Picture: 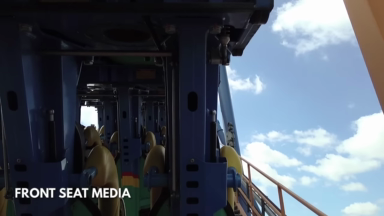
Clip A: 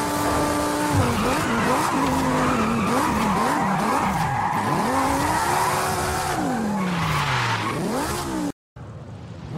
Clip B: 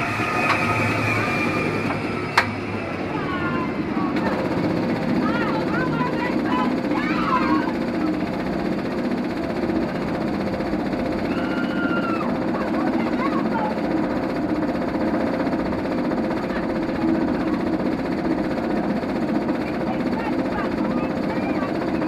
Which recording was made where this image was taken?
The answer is B